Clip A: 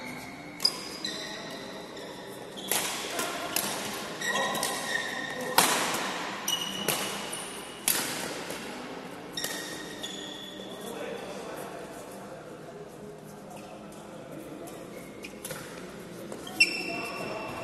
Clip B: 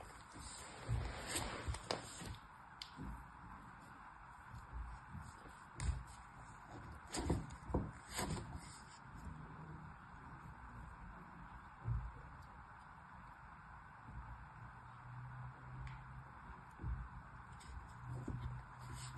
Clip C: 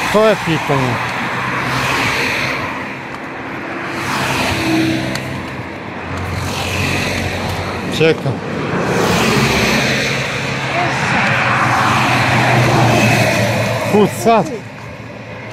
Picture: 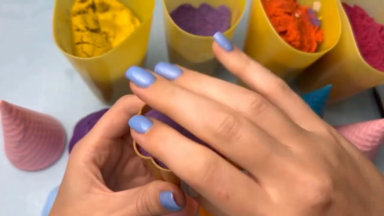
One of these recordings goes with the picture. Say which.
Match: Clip B